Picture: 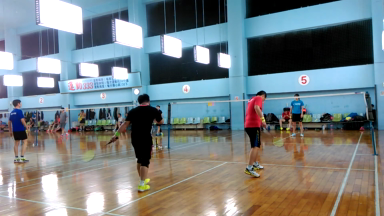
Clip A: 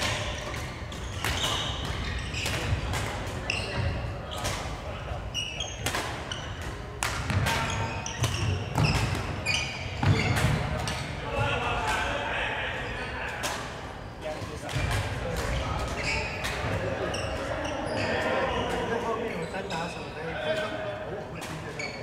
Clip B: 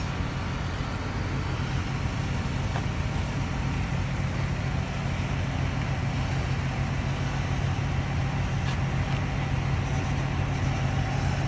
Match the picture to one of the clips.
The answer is A